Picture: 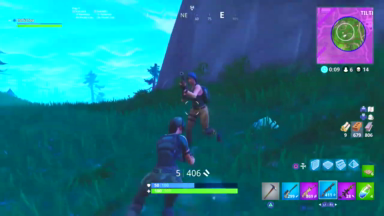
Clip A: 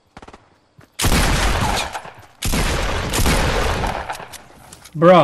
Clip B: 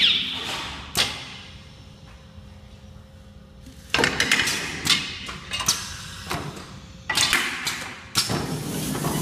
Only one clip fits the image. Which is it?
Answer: A